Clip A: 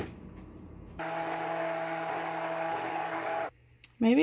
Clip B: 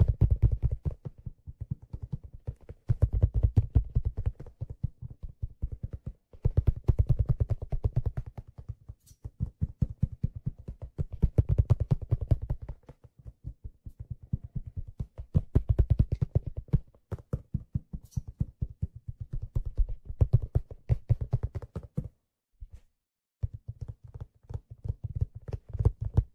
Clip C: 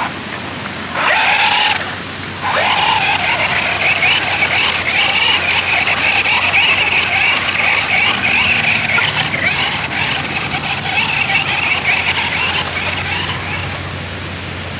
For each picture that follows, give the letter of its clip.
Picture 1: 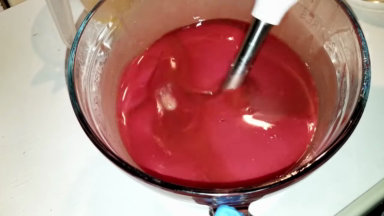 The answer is A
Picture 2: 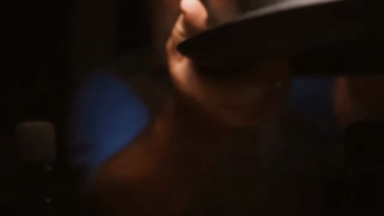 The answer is B